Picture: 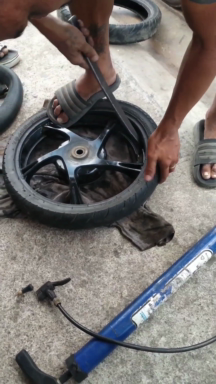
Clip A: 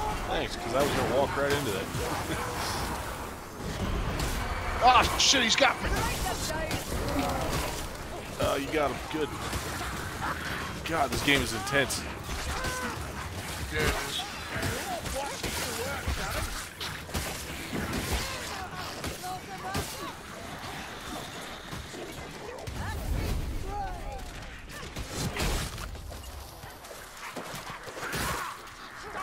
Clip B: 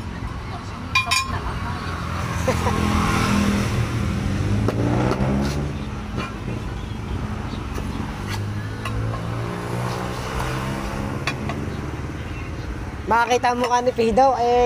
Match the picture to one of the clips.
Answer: B